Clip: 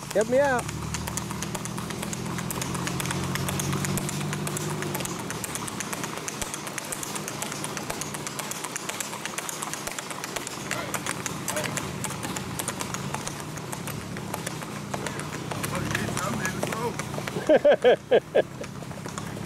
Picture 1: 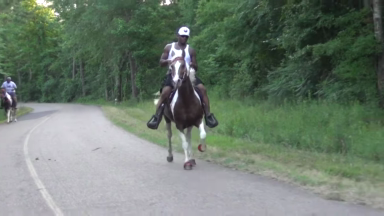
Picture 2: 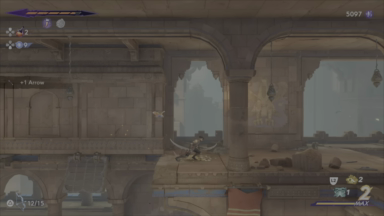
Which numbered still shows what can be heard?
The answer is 1